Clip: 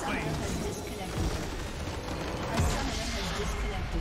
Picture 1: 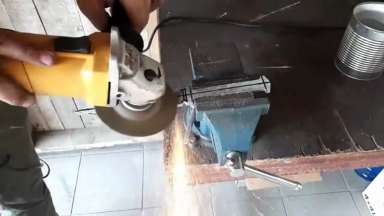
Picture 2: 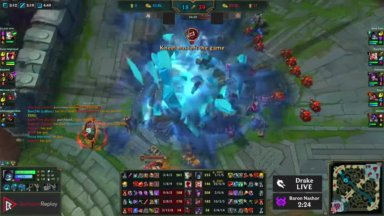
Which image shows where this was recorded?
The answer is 2